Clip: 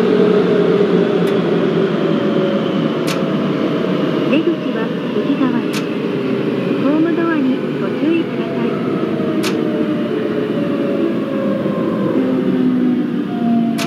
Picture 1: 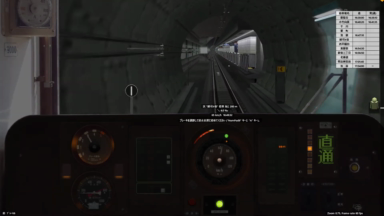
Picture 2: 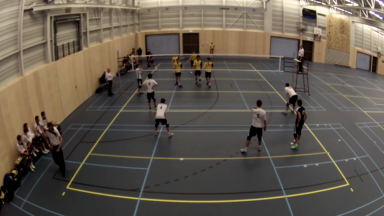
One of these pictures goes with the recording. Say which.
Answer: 1